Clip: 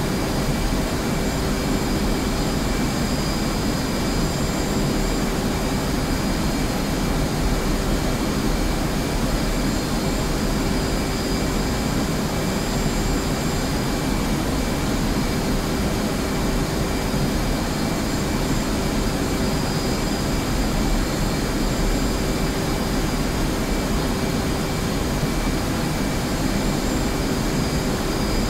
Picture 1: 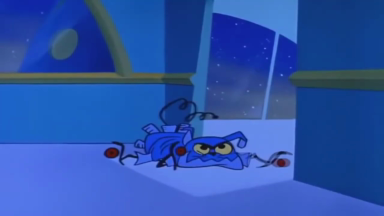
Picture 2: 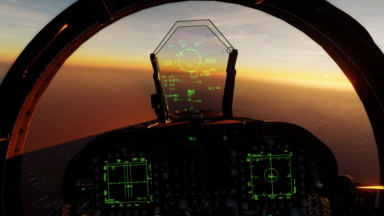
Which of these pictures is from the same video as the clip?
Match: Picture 2